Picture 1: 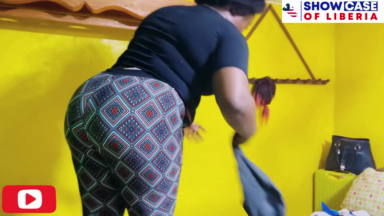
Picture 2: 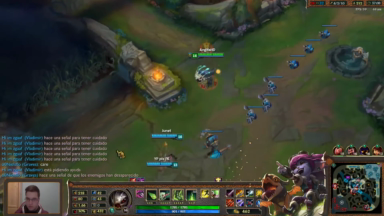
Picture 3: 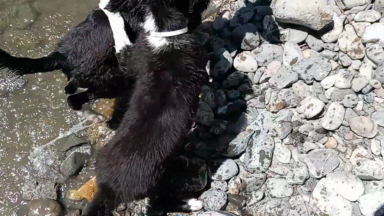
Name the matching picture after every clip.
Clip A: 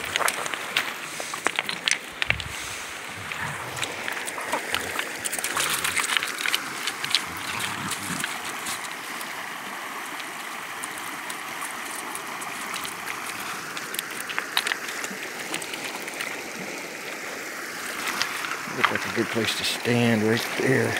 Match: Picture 3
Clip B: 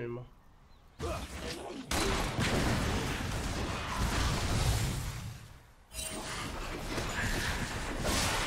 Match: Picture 2